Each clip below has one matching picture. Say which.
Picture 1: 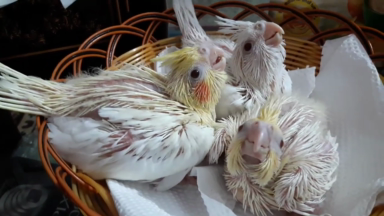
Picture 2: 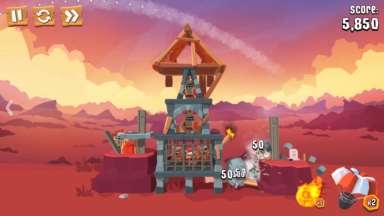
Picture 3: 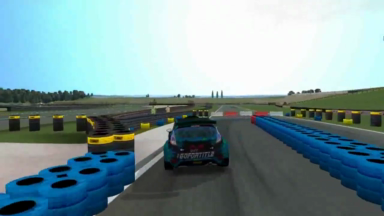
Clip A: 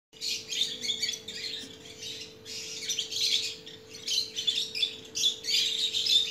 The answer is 1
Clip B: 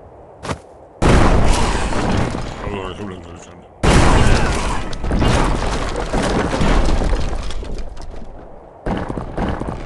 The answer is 2